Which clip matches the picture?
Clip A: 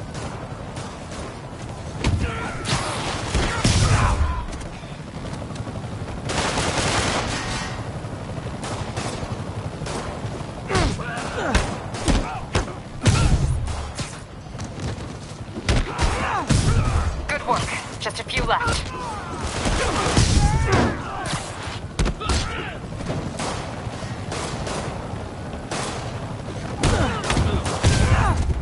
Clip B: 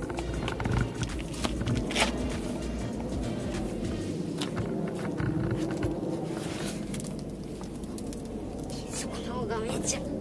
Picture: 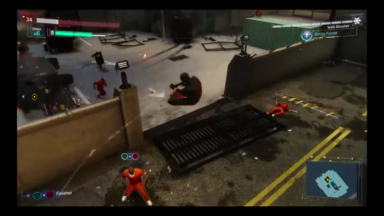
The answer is A